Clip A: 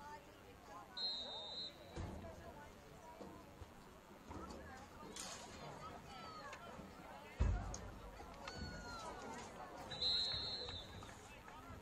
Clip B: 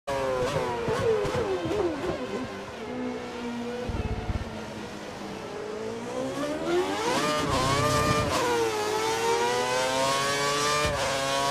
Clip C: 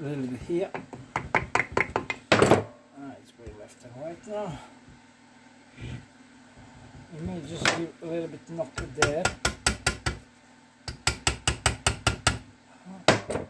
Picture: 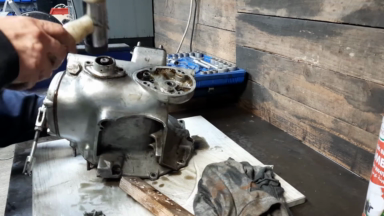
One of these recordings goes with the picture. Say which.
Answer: C